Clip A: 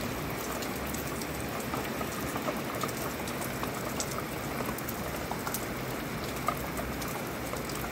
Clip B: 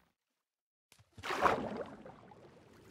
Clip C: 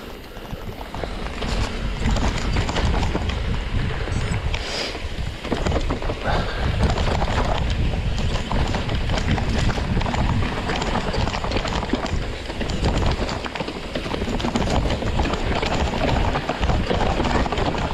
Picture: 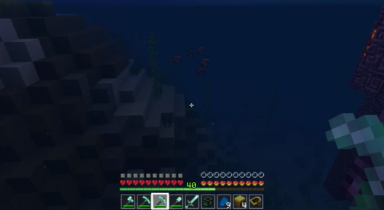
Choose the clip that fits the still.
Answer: B